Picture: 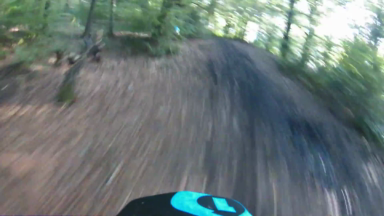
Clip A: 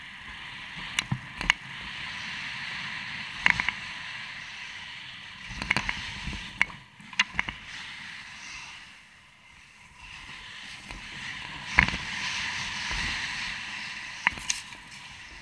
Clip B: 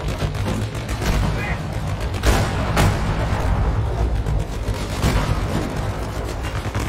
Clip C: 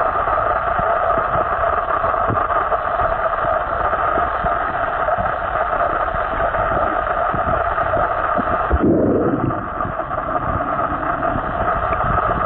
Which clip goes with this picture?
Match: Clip A